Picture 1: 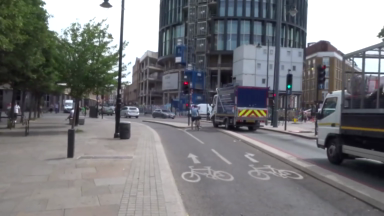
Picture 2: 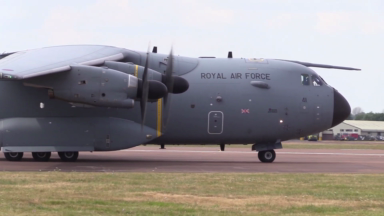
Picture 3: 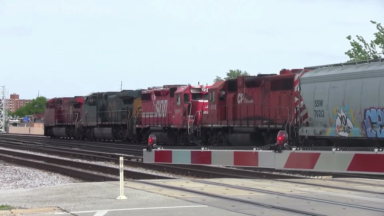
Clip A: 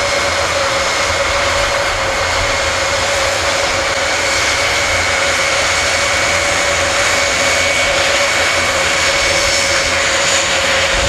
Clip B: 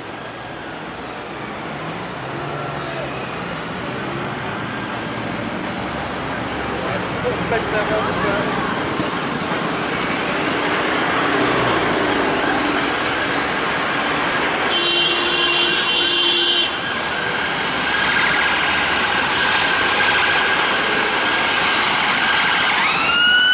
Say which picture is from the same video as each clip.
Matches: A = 2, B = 1